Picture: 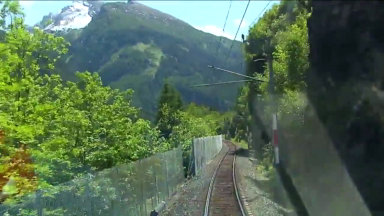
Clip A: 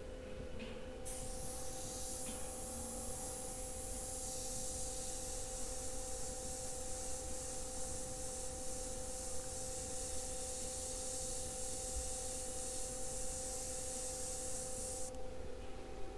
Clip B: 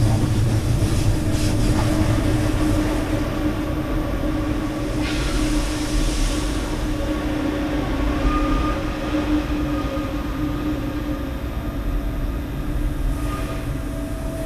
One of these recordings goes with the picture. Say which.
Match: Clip B